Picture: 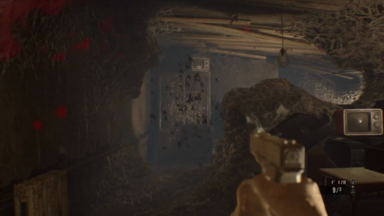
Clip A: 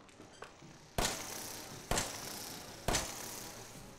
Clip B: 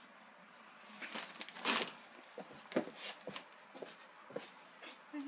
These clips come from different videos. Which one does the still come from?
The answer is A